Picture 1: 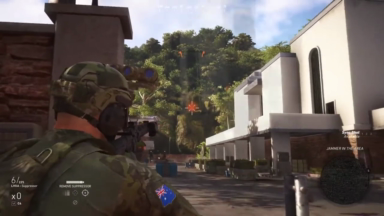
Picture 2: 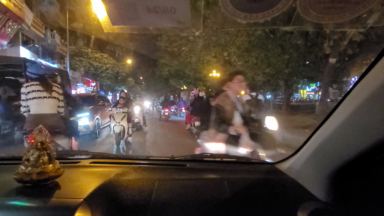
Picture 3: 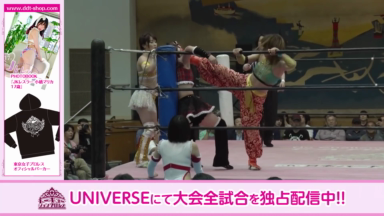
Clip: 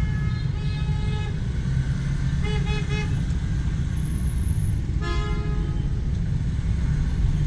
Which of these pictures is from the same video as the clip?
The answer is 2